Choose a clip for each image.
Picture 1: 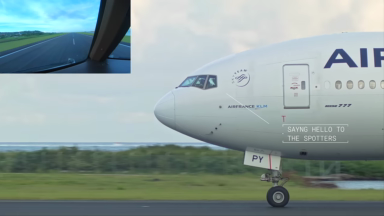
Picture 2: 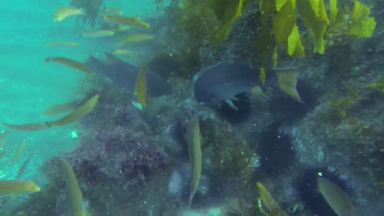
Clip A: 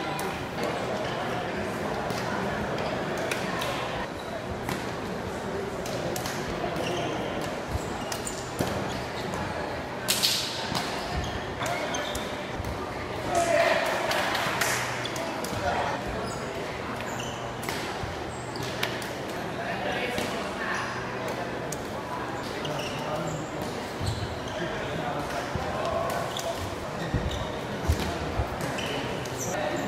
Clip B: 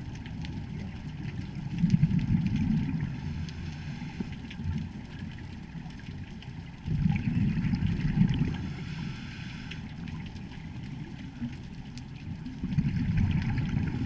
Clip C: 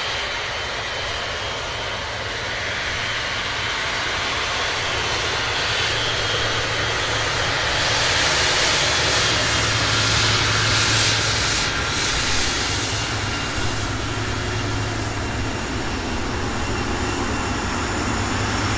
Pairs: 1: C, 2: B